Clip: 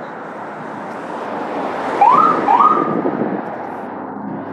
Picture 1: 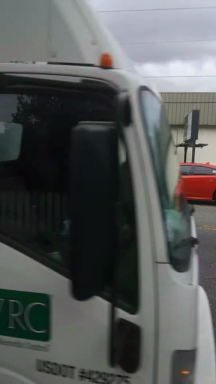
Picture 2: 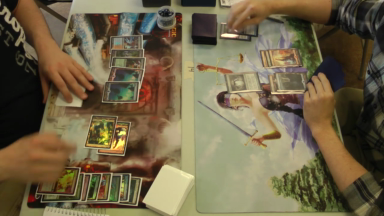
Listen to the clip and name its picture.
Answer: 1